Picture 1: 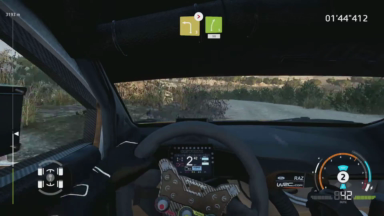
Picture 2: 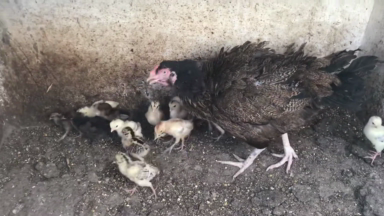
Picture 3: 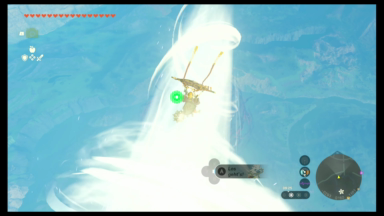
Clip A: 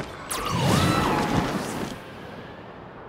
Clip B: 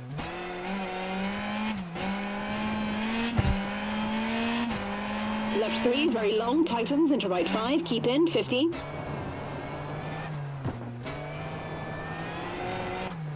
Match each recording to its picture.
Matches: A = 3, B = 1